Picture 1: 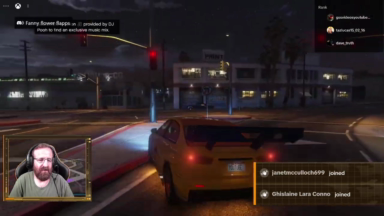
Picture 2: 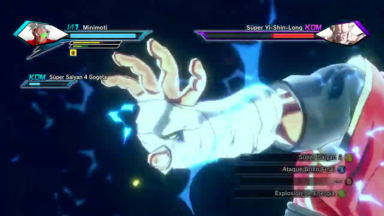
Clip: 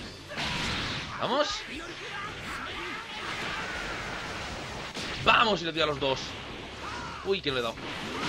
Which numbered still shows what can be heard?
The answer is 2